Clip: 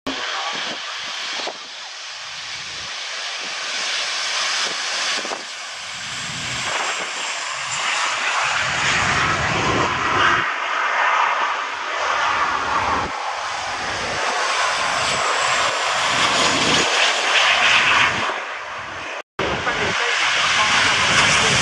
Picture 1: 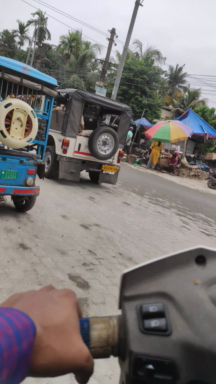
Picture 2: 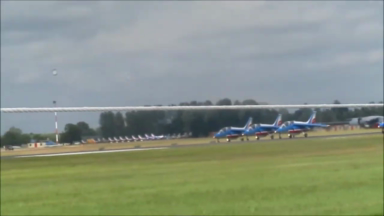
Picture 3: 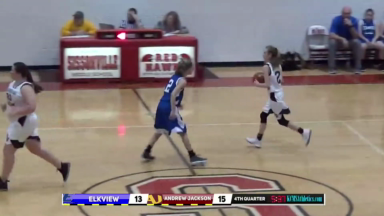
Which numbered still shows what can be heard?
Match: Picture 2